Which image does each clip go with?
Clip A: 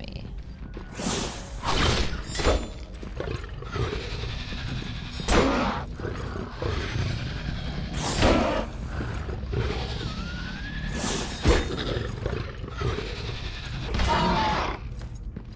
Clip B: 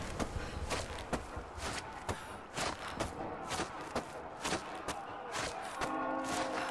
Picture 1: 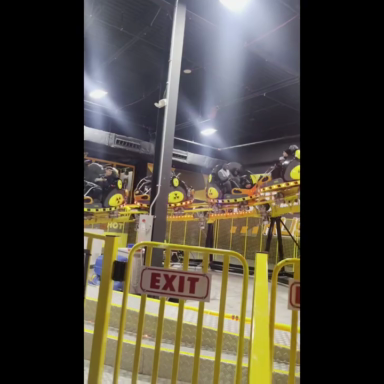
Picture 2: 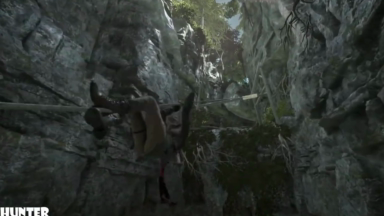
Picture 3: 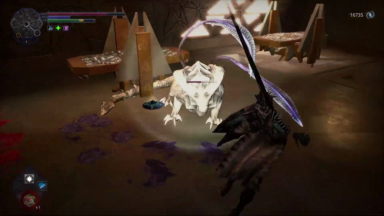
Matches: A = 3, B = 2